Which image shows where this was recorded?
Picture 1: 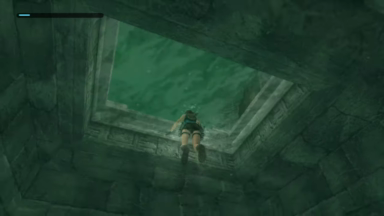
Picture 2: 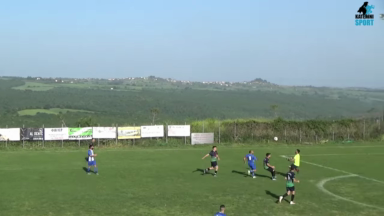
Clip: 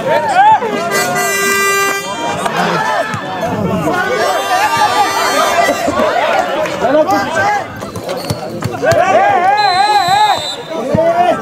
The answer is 2